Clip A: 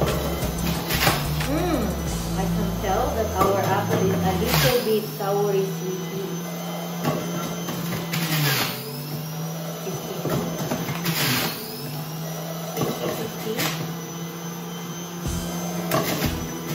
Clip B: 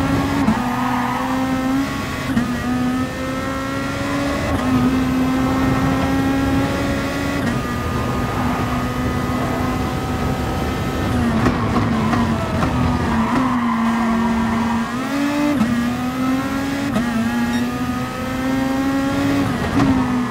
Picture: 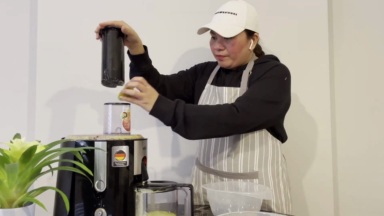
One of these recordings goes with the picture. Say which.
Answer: A